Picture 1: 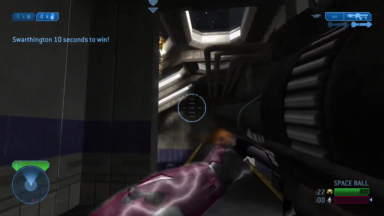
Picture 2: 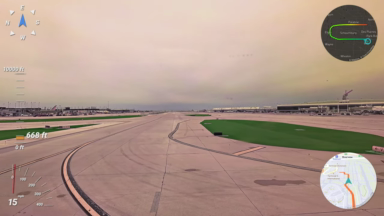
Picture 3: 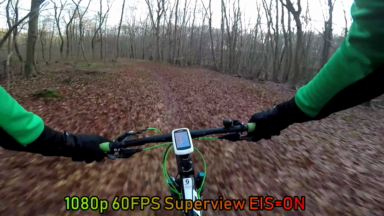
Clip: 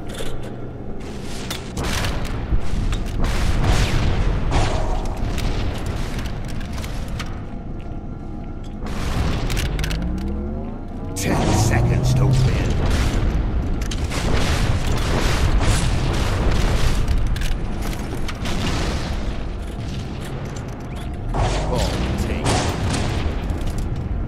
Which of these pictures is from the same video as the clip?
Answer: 1